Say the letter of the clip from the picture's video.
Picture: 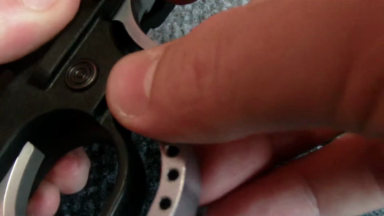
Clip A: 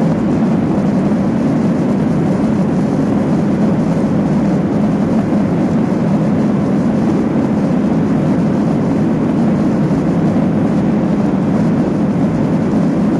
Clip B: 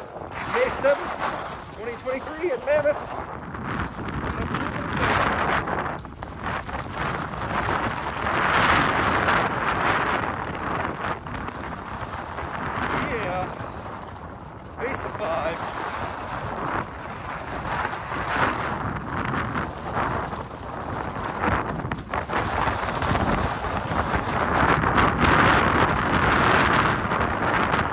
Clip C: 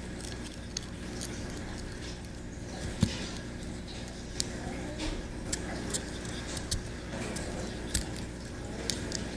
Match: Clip C